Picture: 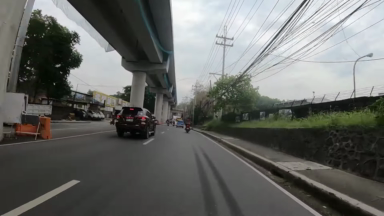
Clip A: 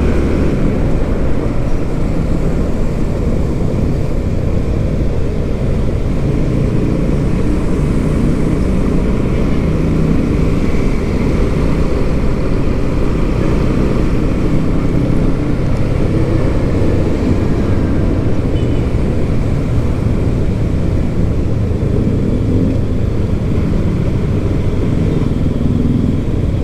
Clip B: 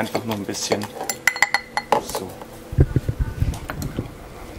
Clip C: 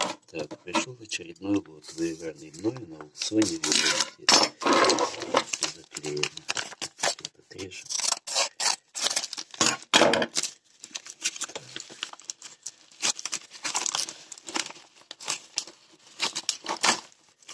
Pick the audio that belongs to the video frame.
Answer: A